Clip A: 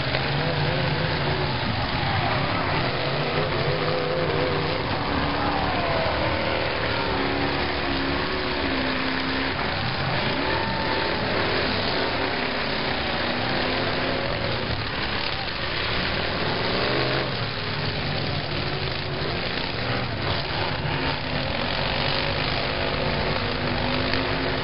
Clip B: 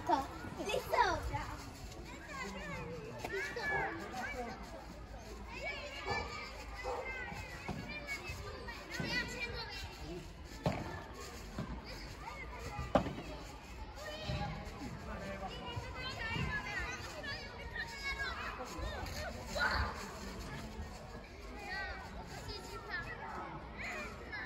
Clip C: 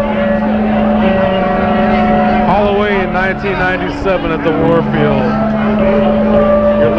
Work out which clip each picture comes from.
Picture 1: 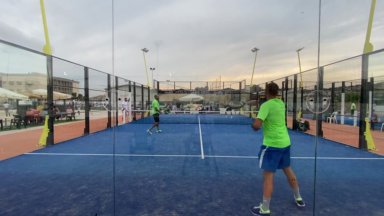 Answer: B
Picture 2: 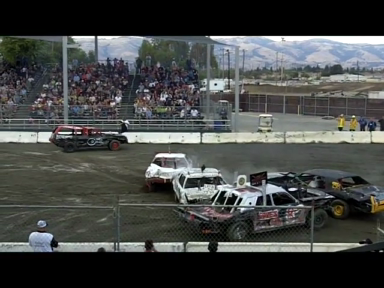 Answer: A